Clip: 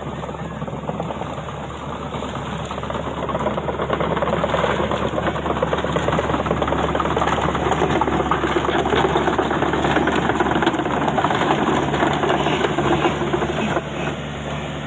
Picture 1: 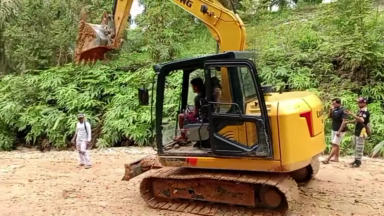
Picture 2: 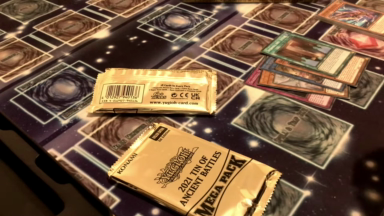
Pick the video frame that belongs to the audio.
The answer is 1